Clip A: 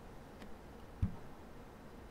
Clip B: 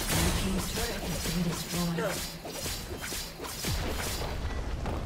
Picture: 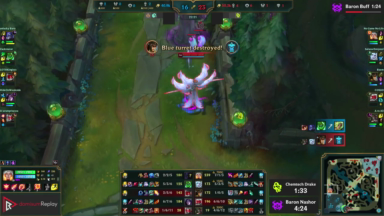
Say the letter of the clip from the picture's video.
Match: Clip B